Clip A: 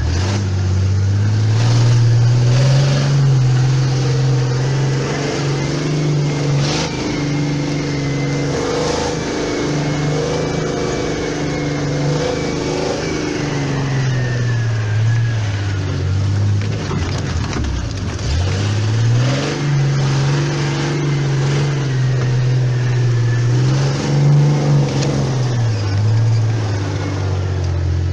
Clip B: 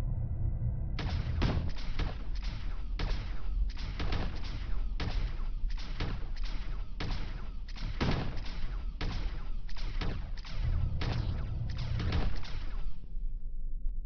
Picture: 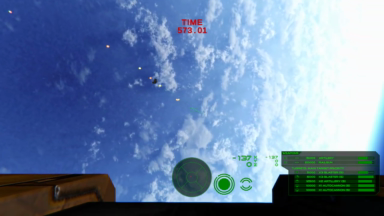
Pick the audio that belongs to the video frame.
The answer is B